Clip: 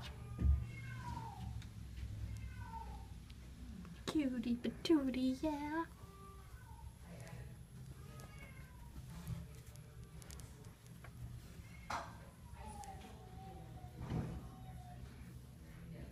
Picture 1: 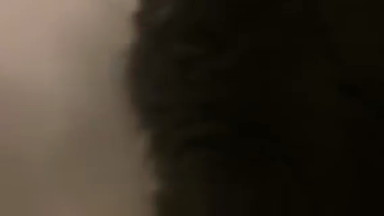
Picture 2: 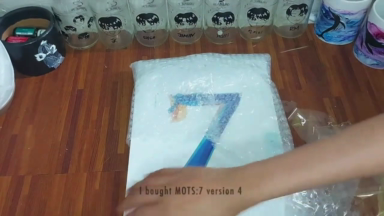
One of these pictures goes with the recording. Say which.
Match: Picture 1